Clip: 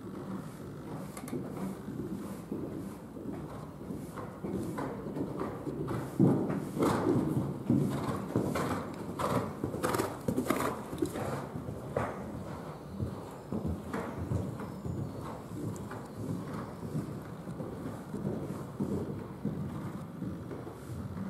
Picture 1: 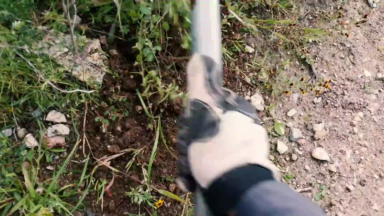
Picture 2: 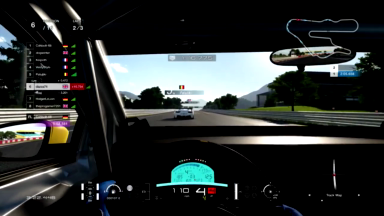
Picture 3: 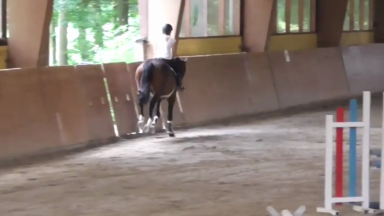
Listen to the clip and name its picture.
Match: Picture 3